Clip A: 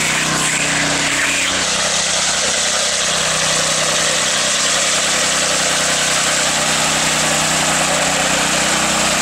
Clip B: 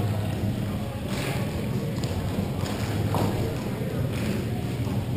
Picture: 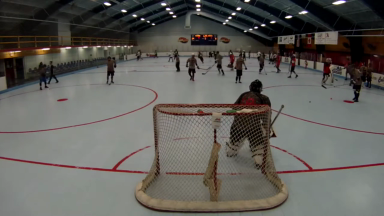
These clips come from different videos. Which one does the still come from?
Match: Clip B